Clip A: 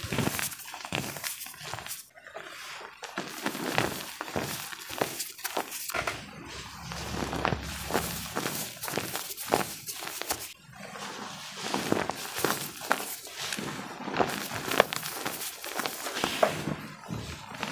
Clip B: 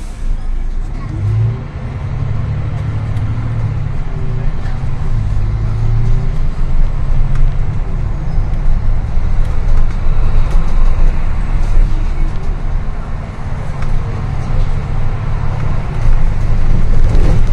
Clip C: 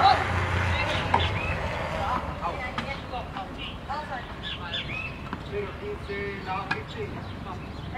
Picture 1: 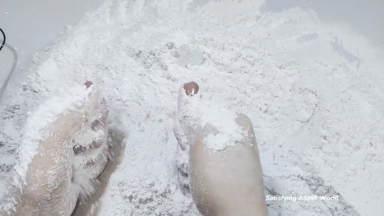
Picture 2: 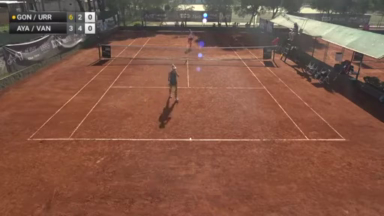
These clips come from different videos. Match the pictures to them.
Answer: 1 A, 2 C